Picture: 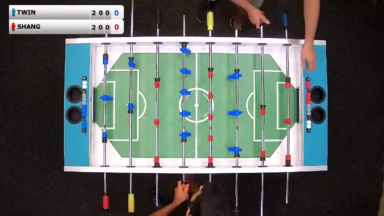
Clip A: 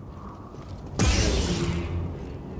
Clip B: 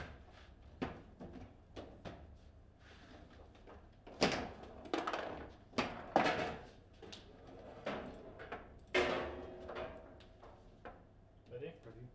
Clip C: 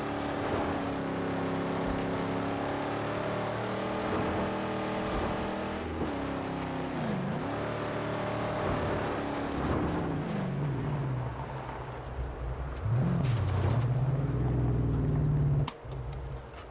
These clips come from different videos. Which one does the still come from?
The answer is B